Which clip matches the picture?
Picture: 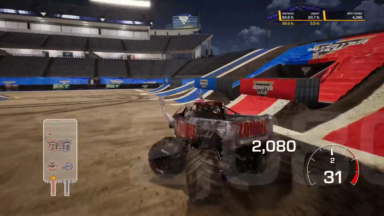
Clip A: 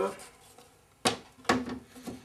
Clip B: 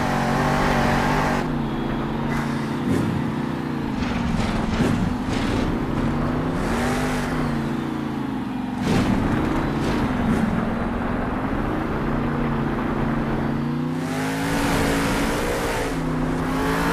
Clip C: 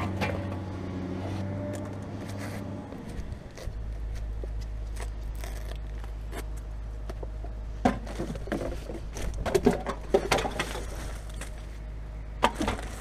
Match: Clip B